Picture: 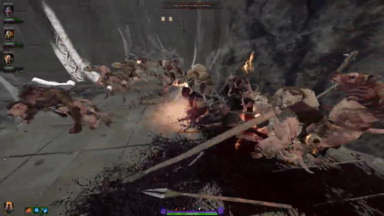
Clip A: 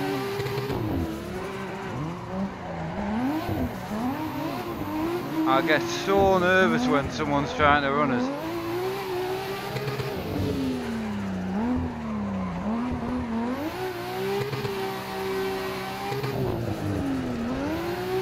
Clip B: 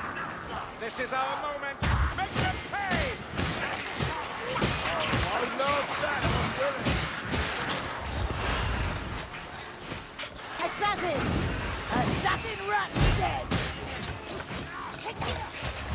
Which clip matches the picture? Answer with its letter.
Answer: B